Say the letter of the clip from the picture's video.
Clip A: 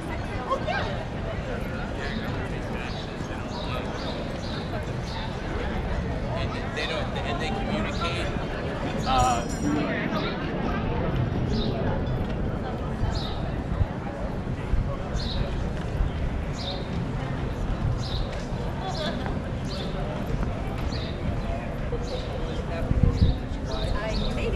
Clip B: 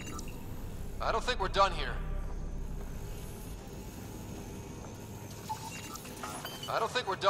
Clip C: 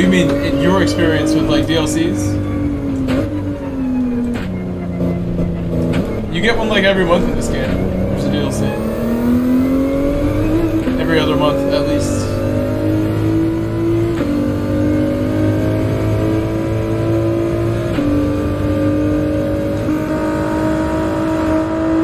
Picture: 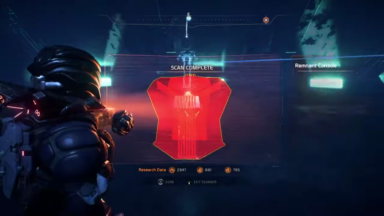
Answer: B